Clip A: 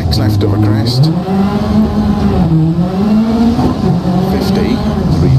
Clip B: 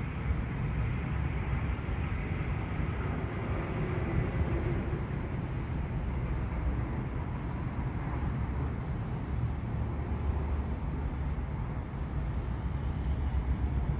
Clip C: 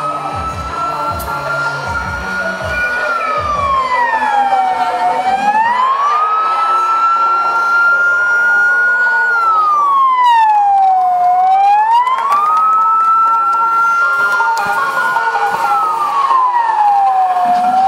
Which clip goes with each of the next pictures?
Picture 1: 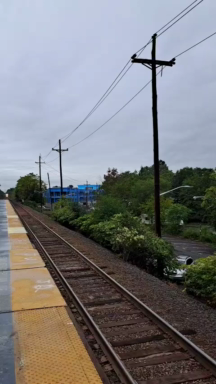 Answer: B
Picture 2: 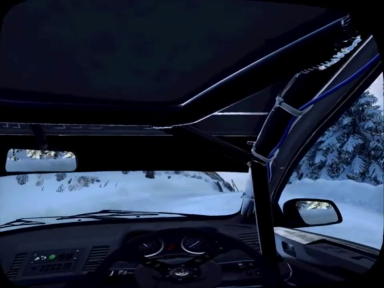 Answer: A